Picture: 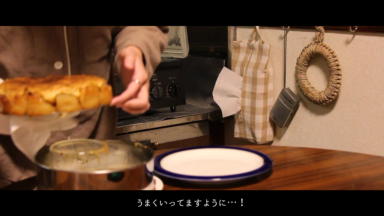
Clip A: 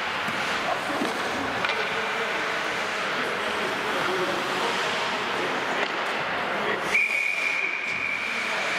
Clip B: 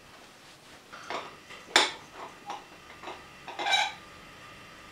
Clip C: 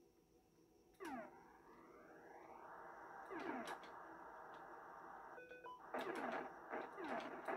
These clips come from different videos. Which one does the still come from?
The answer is B